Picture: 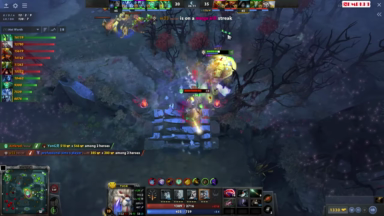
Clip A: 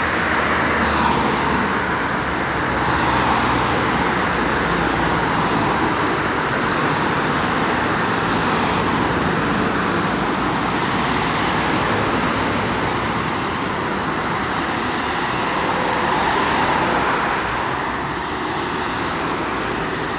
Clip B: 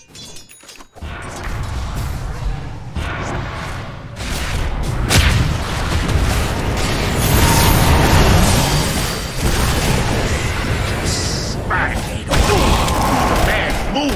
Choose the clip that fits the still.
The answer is B